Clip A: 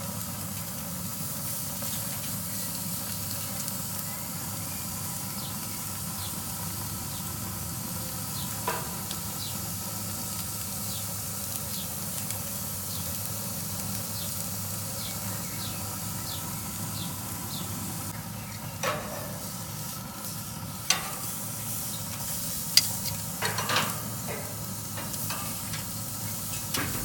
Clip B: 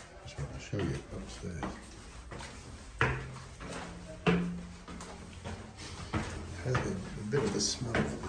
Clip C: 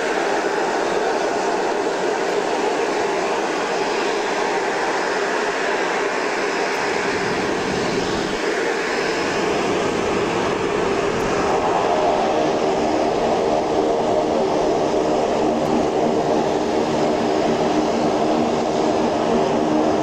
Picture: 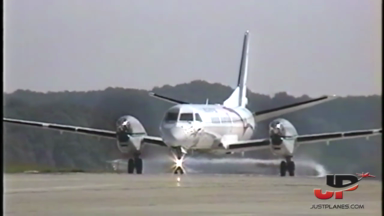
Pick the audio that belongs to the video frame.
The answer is C